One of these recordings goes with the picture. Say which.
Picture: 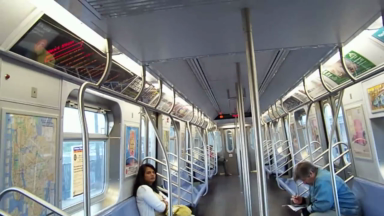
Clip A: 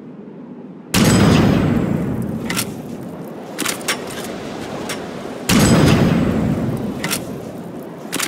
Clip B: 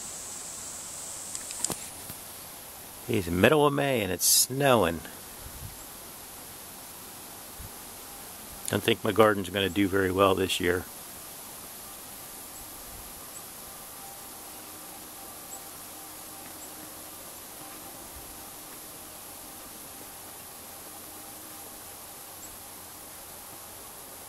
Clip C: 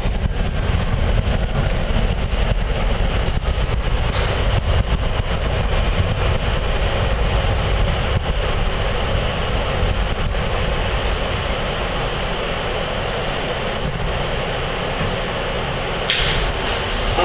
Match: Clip C